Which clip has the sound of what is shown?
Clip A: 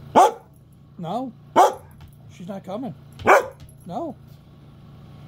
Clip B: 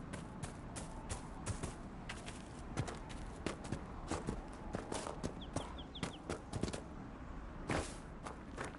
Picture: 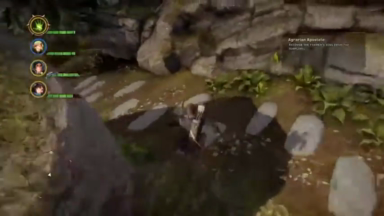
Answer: B